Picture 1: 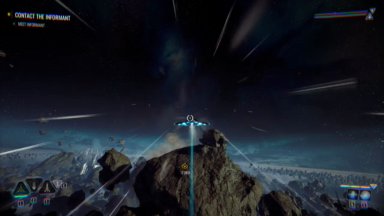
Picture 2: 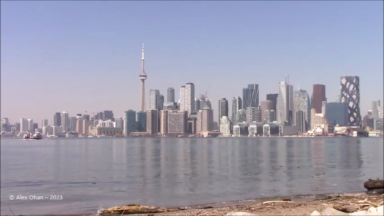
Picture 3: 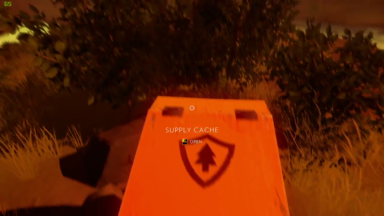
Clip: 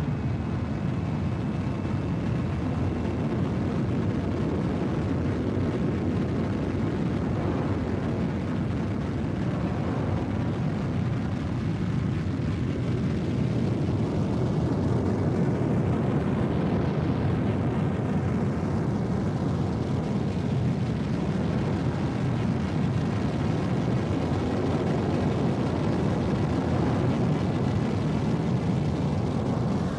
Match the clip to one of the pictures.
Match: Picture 1